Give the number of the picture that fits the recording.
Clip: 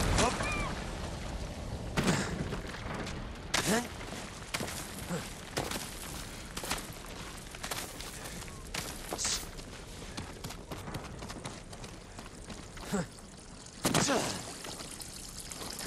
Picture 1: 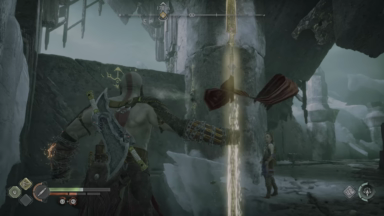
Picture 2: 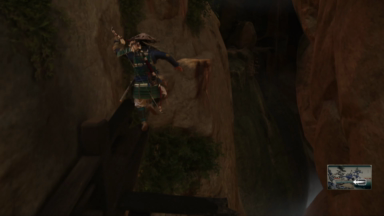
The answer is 2